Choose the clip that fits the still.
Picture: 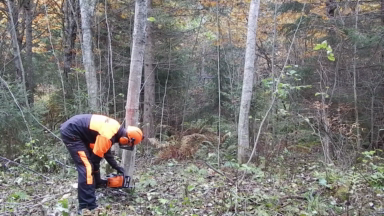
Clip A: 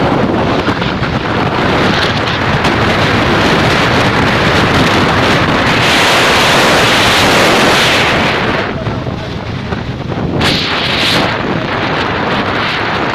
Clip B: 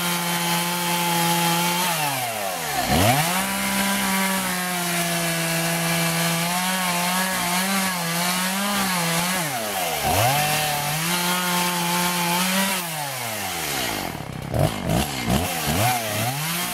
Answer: B